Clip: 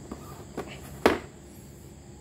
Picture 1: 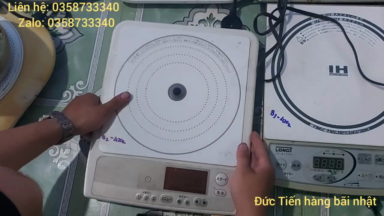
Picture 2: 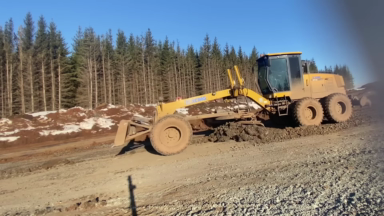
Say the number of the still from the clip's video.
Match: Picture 1